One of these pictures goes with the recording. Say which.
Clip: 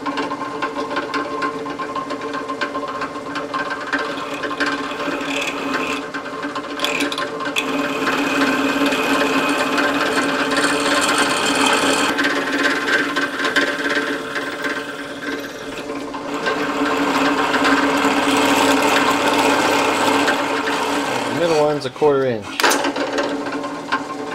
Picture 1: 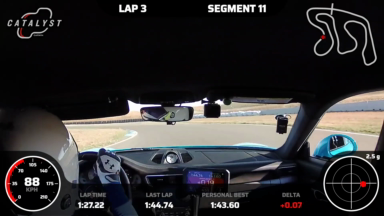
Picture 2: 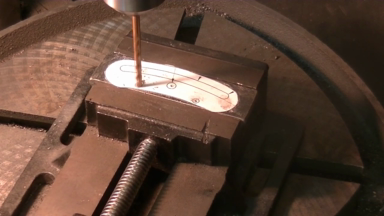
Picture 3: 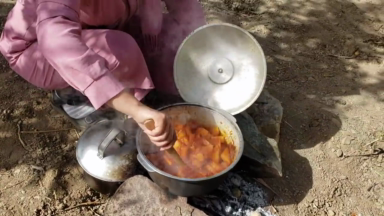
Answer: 2